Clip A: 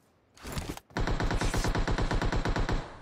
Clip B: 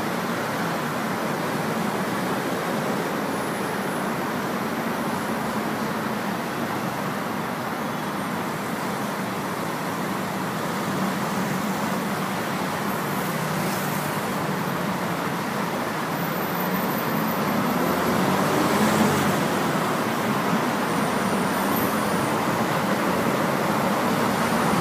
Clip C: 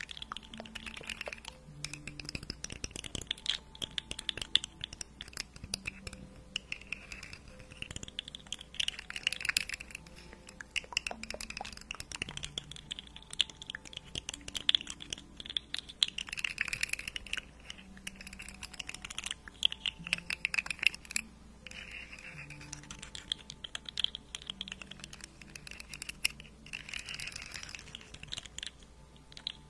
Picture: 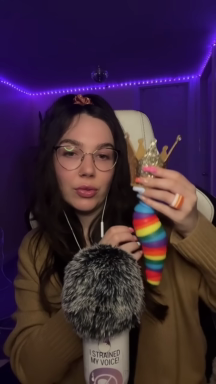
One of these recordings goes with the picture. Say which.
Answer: C